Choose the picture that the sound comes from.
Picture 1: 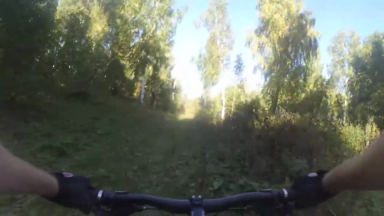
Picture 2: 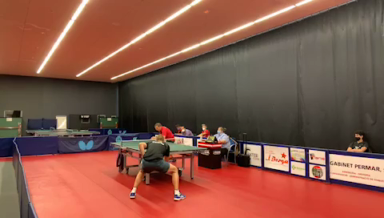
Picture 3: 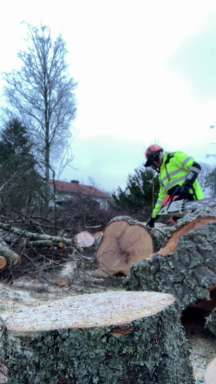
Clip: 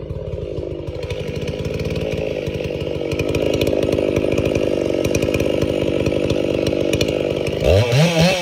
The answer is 3